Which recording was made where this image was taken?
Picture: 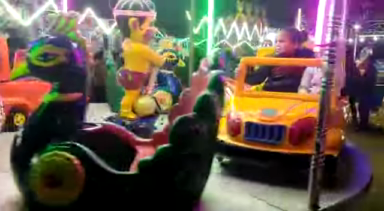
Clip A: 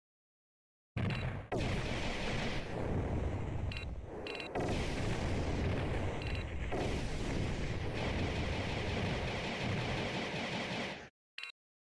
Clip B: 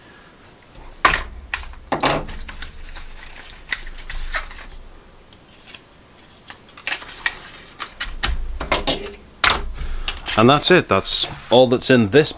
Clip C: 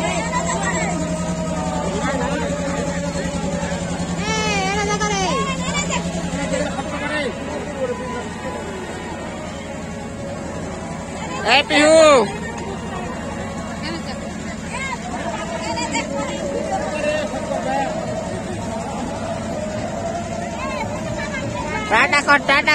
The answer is C